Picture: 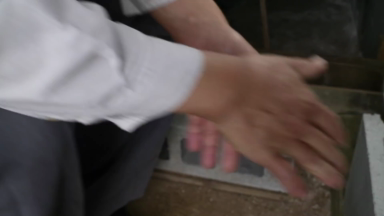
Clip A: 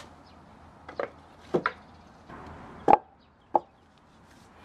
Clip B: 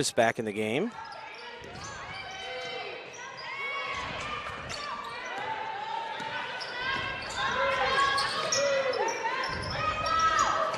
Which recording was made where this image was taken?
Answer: A